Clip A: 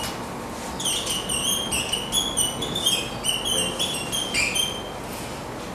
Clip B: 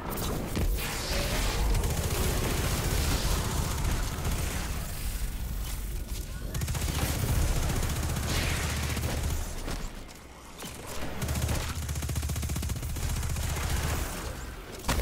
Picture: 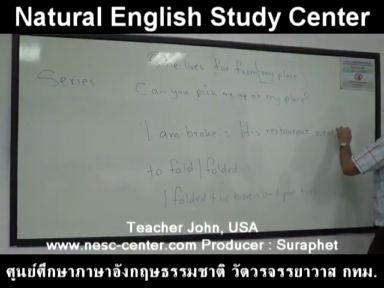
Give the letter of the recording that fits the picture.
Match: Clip A